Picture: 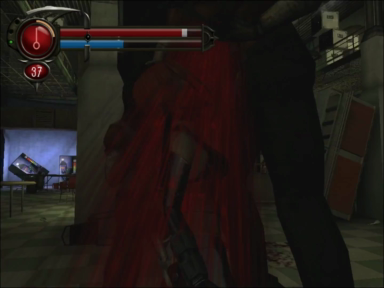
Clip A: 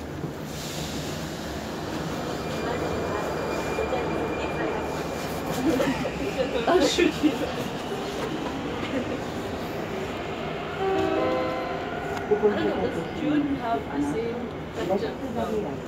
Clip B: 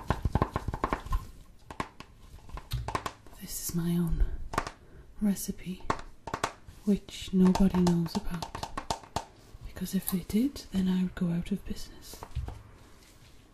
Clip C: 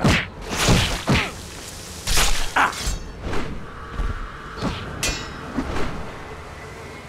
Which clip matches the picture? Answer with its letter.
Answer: C